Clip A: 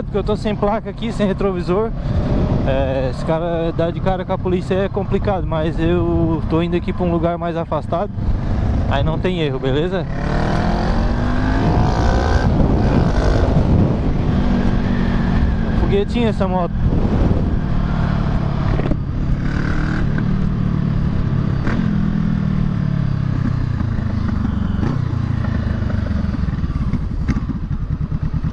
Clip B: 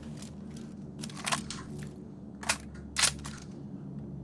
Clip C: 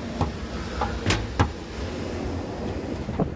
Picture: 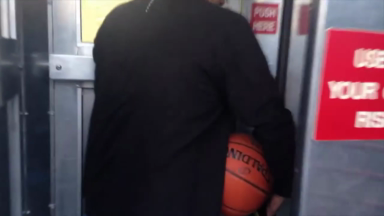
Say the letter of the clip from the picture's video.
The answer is C